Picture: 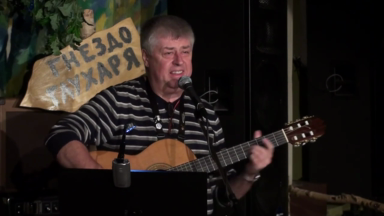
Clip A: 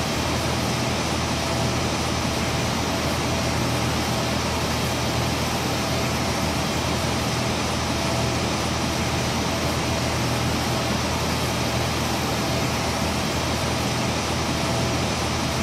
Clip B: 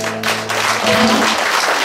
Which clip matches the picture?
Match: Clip B